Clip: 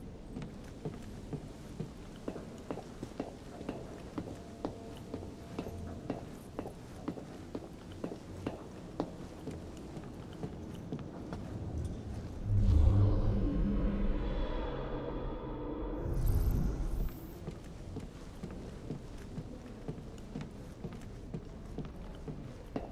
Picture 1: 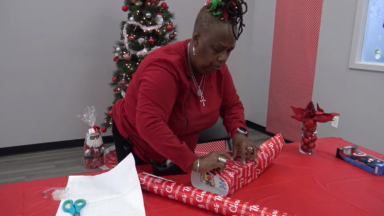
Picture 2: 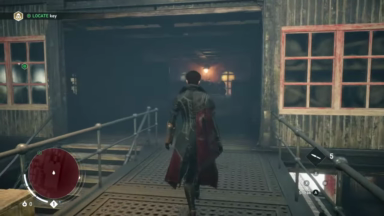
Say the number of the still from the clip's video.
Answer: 2